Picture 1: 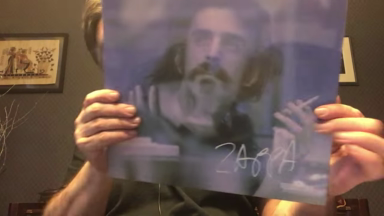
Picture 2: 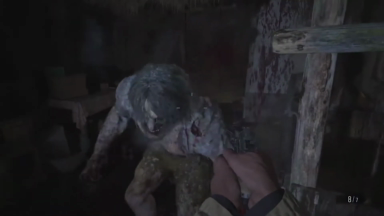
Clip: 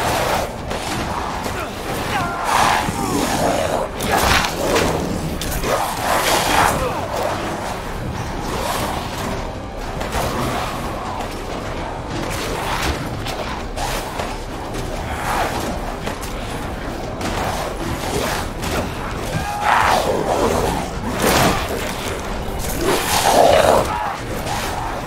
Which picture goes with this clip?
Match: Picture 2